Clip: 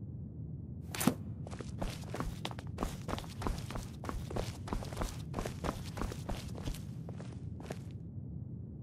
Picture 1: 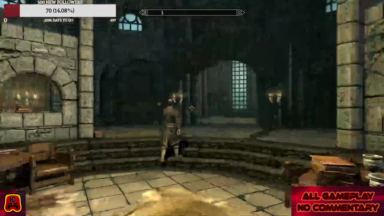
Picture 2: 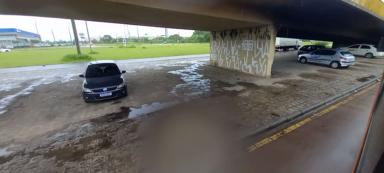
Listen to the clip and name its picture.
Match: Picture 1